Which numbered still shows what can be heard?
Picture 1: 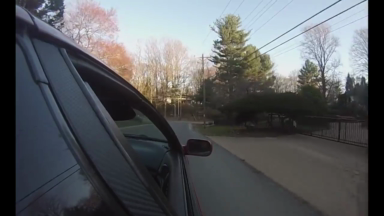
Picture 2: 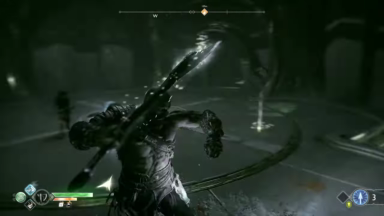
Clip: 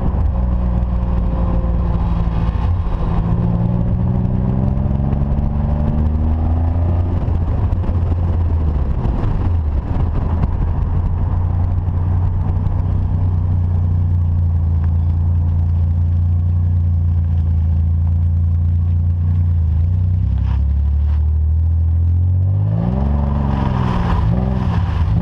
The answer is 1